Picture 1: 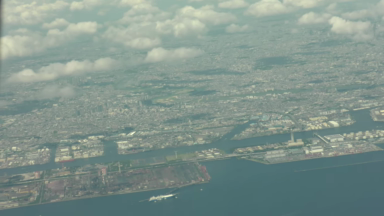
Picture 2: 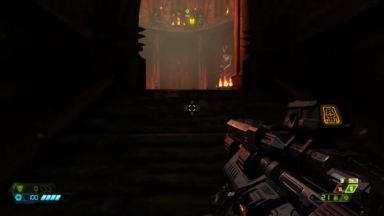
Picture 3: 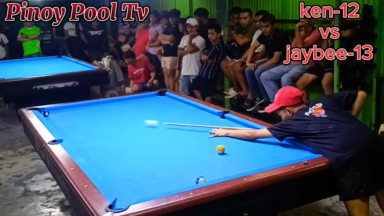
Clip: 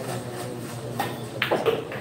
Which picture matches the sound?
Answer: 3